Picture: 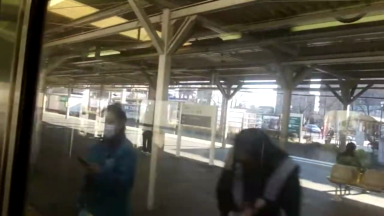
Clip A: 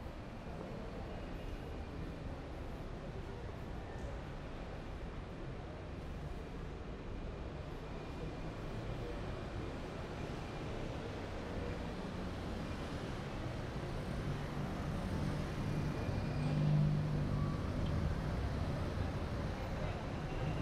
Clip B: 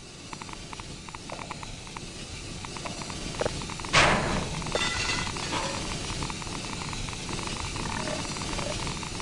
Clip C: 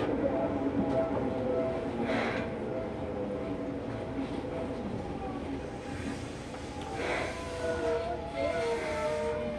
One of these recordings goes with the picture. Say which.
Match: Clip C